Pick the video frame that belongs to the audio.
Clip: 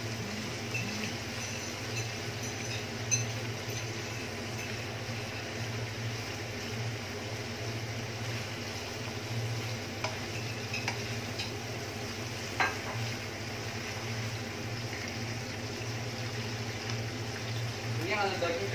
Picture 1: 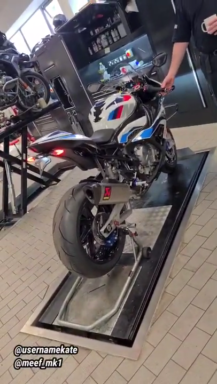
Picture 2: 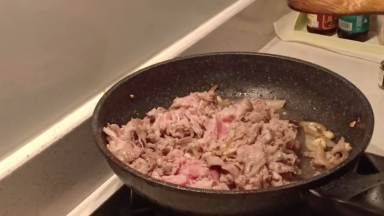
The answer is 2